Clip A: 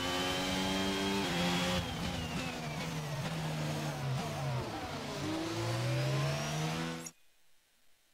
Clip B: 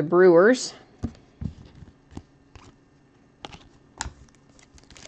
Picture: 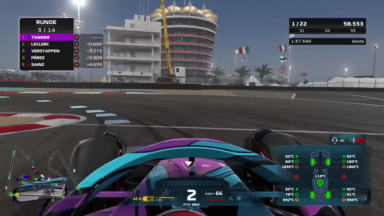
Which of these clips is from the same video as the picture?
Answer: A